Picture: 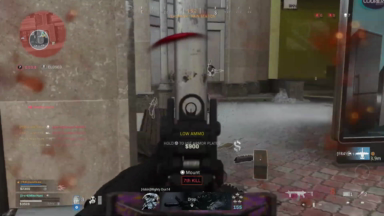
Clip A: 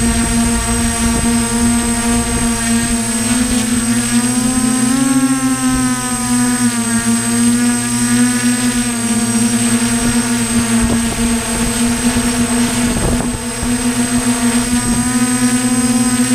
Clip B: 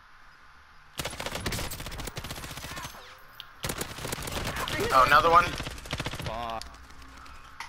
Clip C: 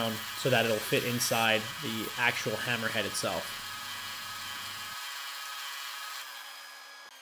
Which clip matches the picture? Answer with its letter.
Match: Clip B